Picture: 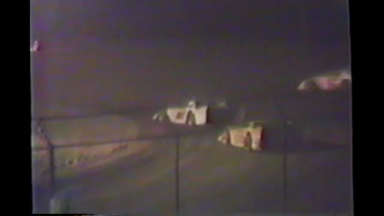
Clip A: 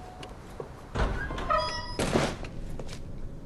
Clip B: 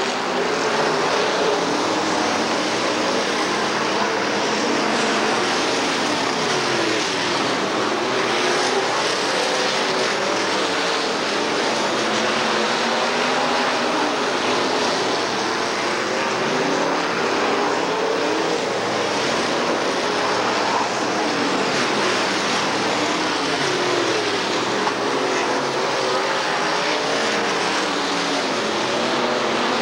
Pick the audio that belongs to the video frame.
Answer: B